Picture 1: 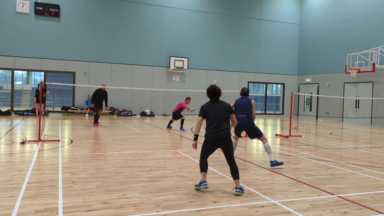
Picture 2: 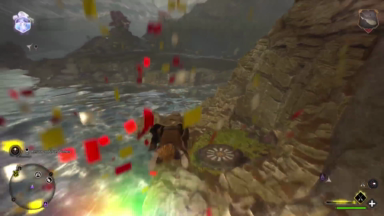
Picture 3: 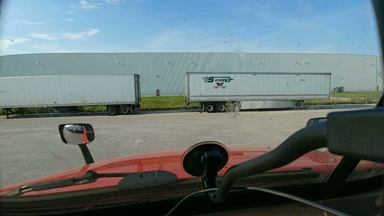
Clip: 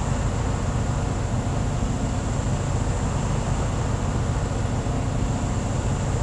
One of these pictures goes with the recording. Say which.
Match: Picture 3